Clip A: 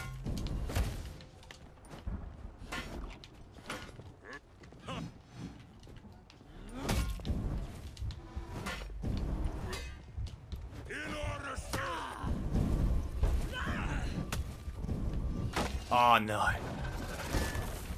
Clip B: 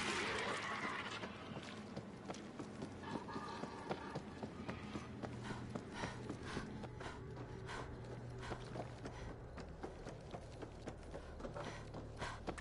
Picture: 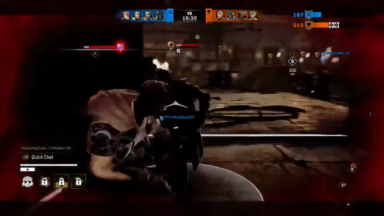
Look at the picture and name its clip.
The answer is A